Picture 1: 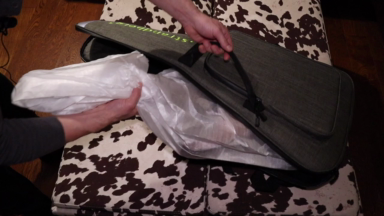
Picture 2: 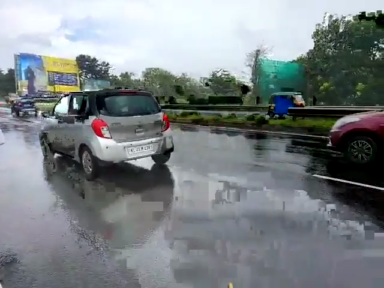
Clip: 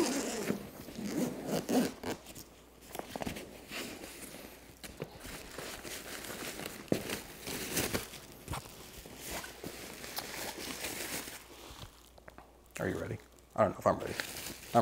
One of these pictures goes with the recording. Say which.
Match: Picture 1